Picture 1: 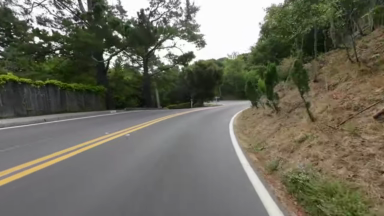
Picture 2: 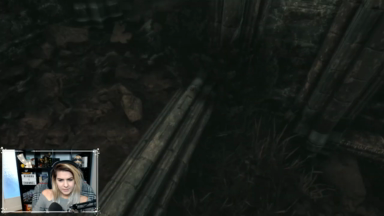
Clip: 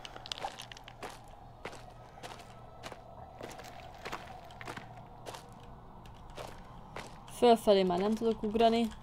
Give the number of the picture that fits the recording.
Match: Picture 2